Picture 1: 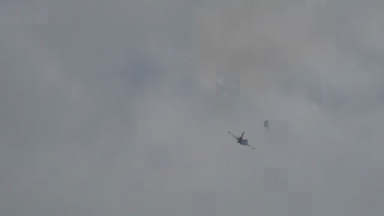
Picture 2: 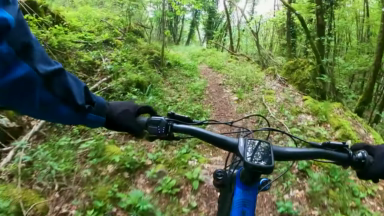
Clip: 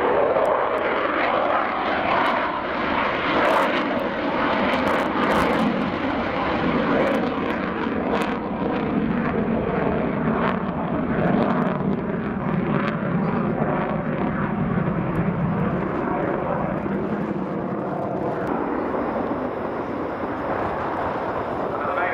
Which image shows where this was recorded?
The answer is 1